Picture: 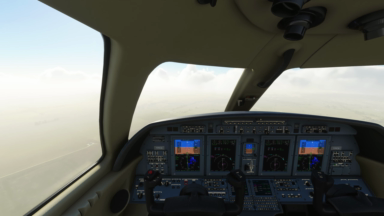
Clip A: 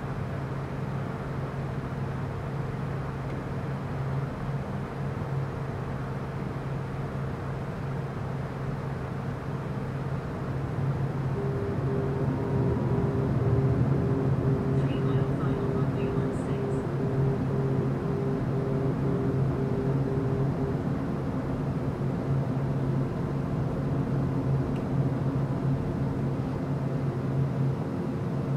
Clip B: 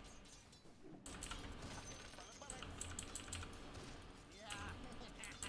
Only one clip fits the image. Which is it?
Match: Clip A